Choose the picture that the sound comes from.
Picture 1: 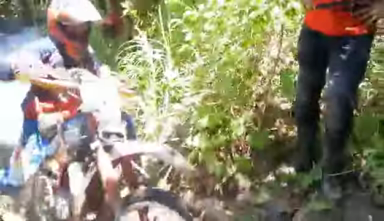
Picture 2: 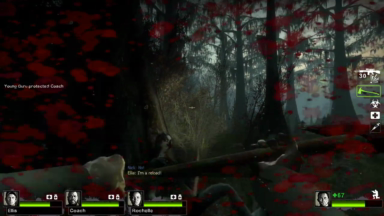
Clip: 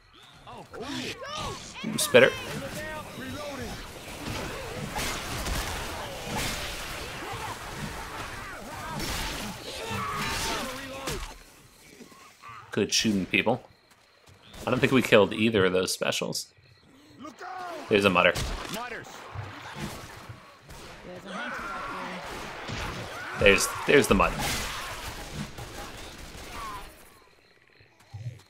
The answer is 2